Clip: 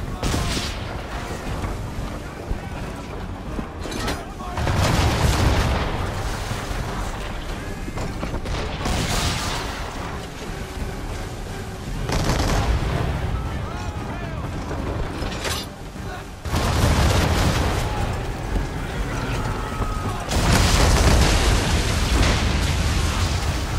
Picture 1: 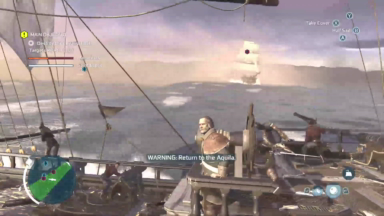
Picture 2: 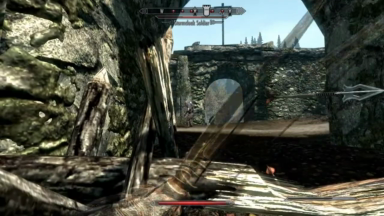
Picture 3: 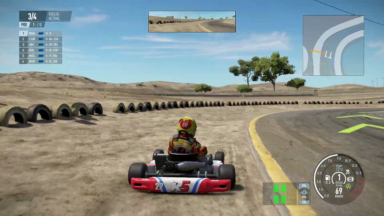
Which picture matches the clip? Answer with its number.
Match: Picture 1